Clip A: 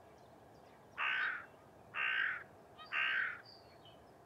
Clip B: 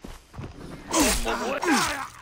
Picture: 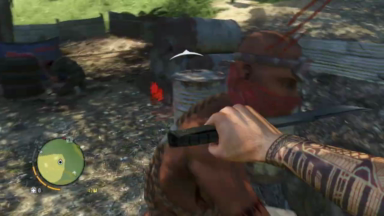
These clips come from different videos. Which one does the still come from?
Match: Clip B